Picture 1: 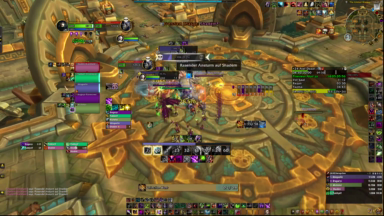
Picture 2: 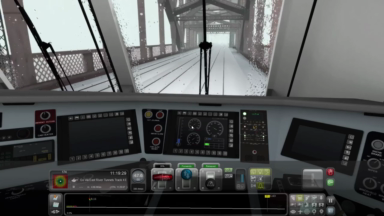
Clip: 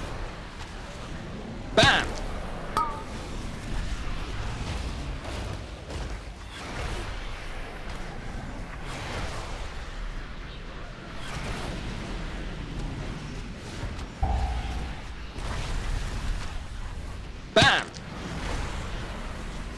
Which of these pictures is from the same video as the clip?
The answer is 1